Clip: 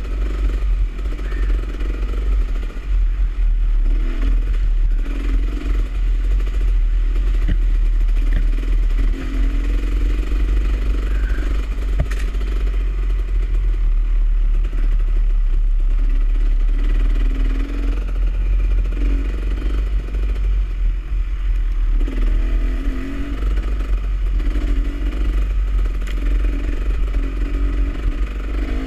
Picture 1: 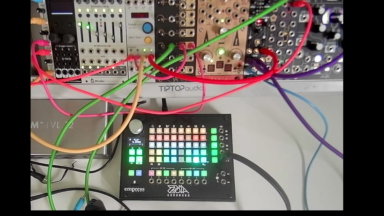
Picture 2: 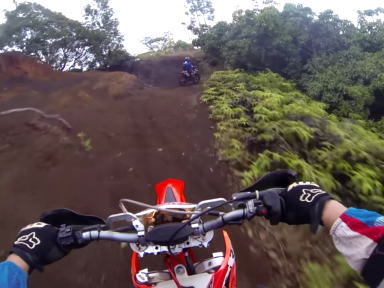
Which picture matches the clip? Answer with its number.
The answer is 2